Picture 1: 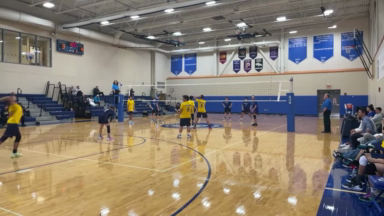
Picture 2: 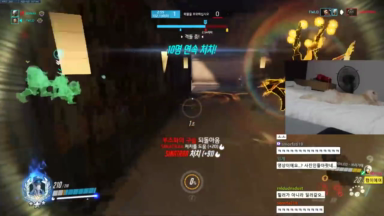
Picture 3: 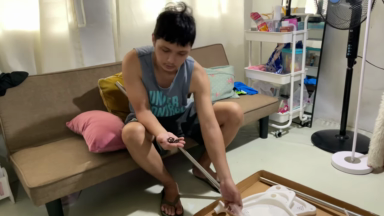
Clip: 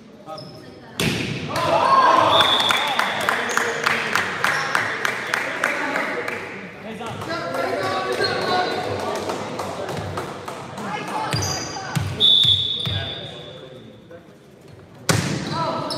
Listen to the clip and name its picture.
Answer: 1